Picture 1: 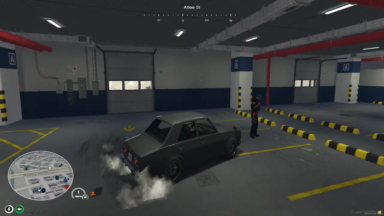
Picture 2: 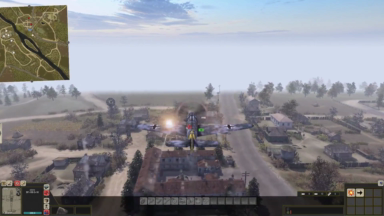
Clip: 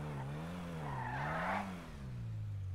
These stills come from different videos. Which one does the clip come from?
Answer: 1